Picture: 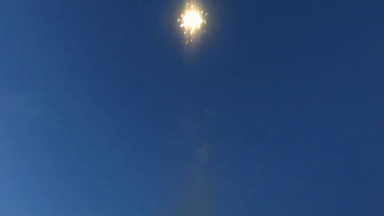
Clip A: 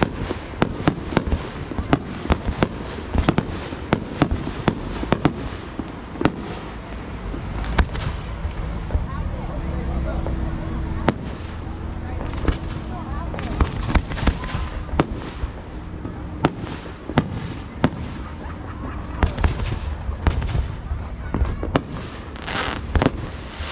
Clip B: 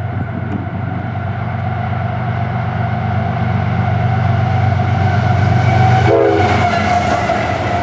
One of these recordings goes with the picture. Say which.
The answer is A